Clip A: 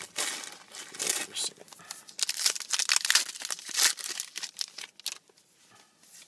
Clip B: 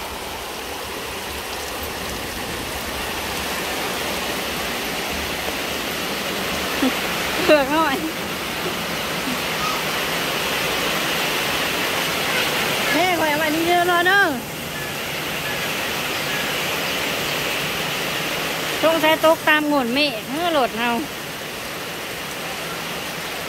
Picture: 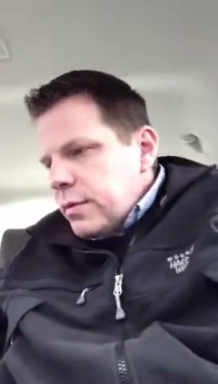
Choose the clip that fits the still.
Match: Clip A